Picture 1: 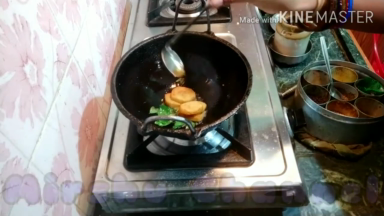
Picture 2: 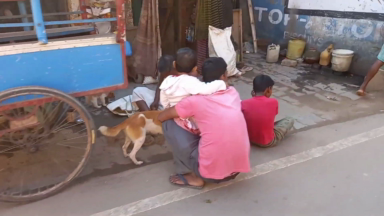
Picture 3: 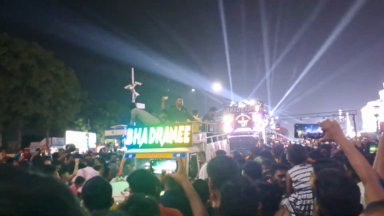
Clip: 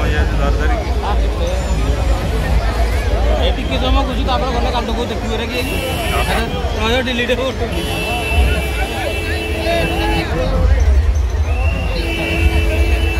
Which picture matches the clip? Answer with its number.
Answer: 3